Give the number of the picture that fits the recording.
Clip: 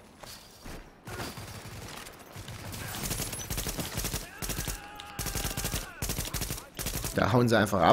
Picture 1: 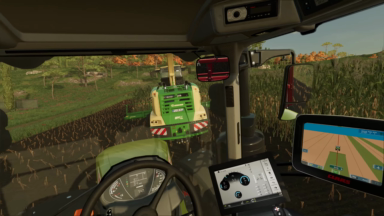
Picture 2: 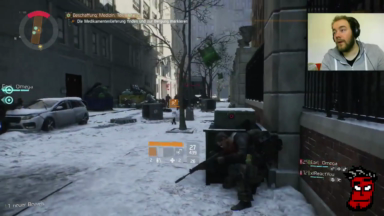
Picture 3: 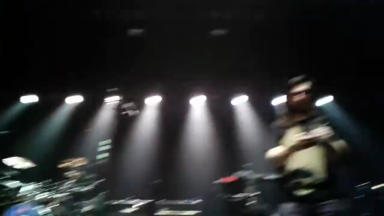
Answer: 2